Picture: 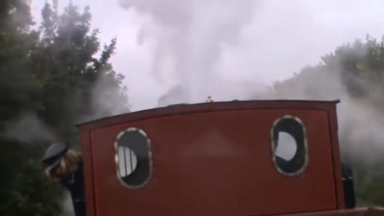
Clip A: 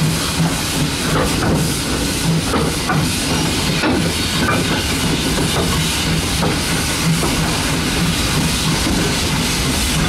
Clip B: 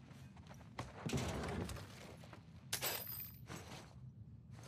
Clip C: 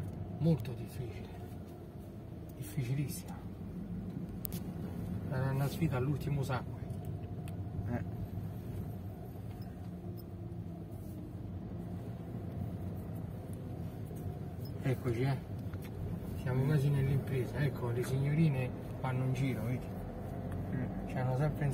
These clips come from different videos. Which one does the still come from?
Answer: A